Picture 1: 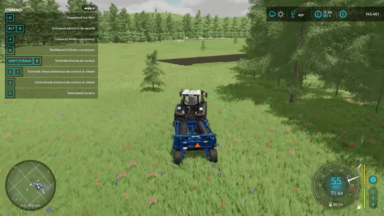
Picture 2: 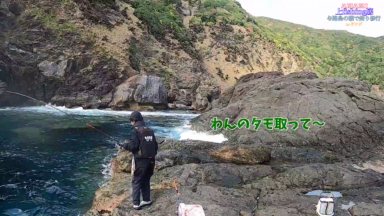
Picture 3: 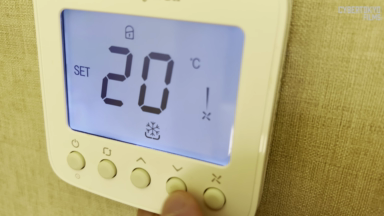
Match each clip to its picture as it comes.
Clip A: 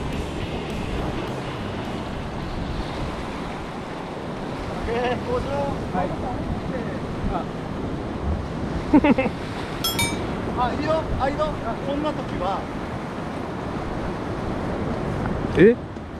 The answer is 2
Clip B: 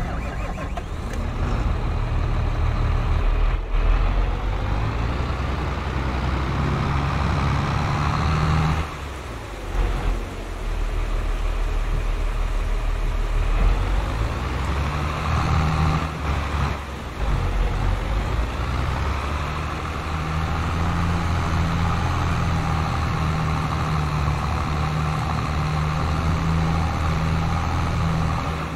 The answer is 1